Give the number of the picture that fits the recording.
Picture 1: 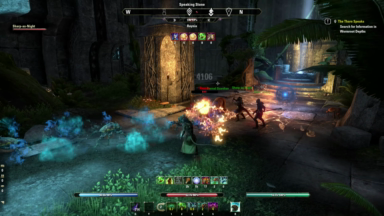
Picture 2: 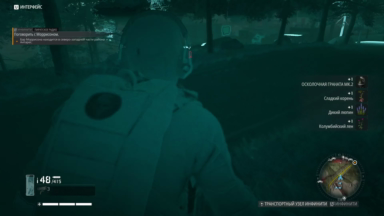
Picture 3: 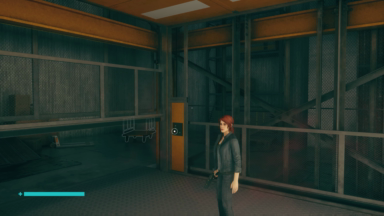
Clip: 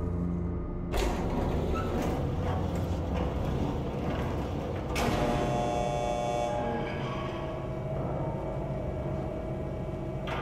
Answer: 3